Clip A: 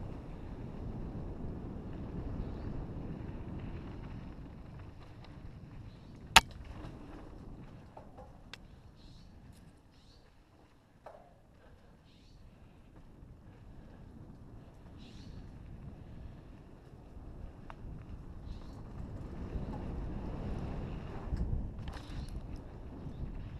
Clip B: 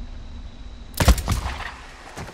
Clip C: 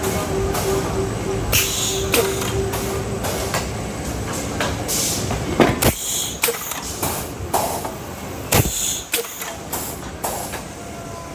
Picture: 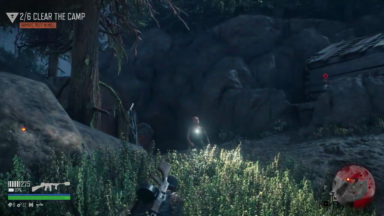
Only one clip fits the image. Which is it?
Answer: B